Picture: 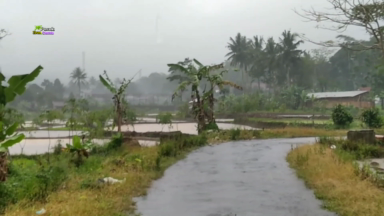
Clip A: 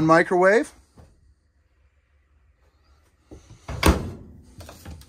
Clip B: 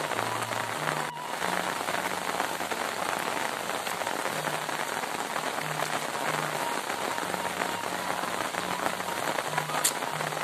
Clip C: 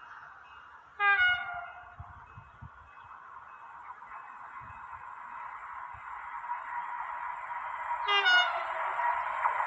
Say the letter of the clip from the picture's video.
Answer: B